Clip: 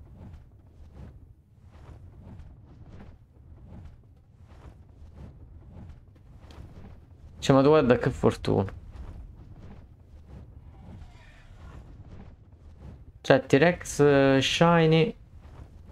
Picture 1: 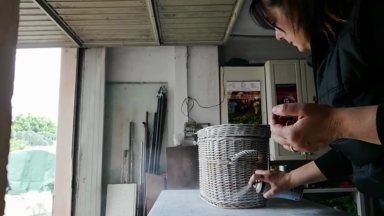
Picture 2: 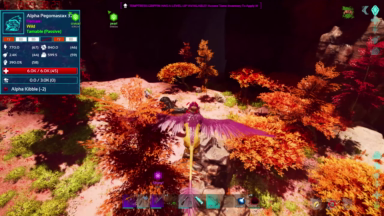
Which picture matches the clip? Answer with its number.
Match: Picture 2